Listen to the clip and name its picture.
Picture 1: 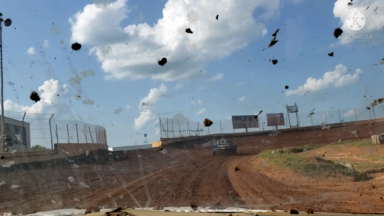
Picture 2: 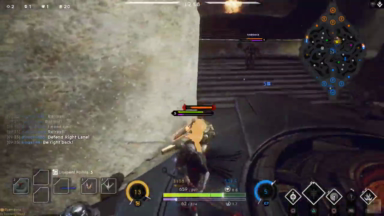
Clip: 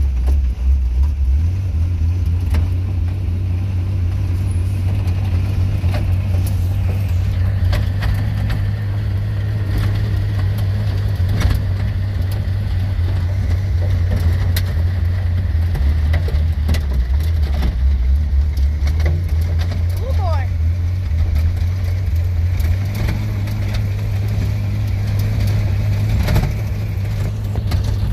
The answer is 1